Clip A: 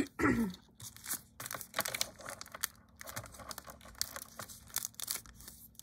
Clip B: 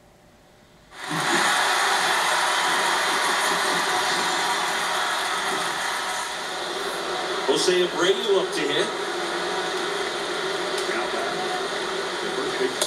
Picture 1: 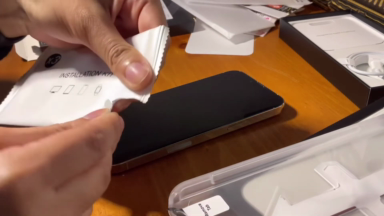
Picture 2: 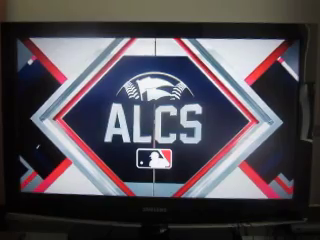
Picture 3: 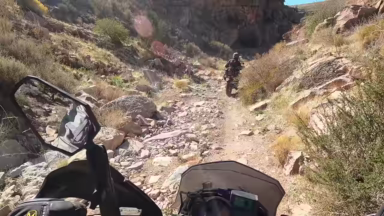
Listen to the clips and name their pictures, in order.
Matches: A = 1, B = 2